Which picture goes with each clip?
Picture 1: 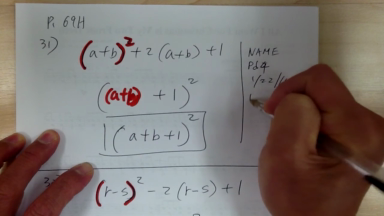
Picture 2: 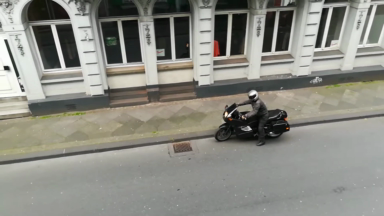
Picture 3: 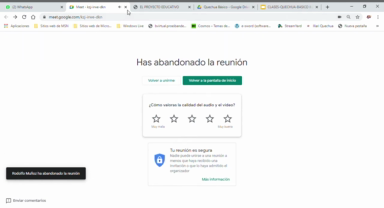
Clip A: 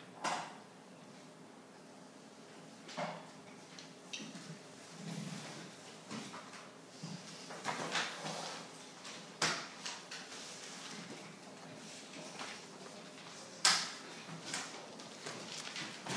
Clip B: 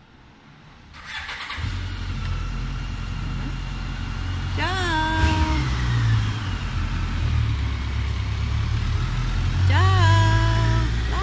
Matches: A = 1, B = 2